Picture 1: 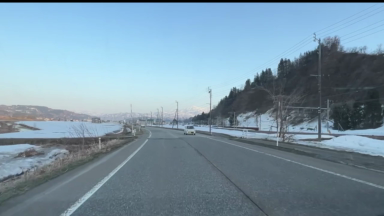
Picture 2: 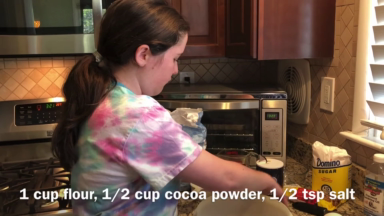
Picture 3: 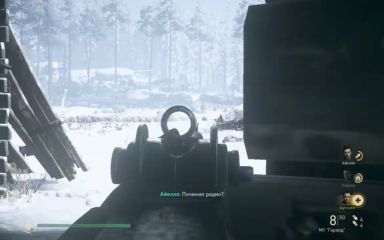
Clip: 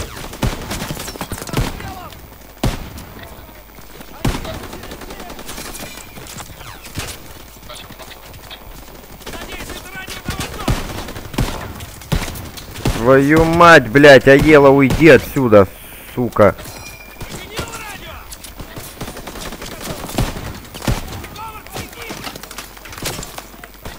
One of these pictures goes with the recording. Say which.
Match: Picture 3